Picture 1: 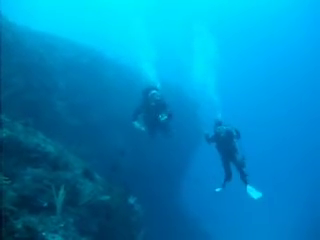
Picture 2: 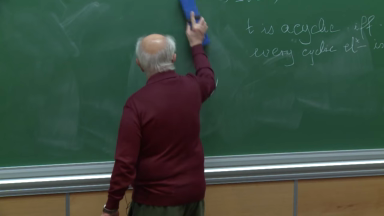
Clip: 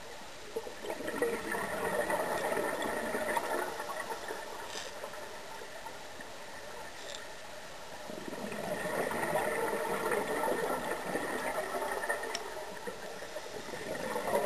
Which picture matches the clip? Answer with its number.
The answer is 1